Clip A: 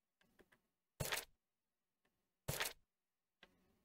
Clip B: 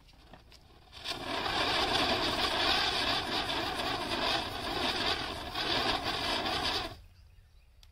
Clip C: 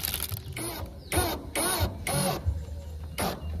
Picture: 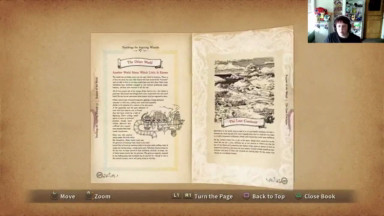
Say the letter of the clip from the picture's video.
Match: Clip A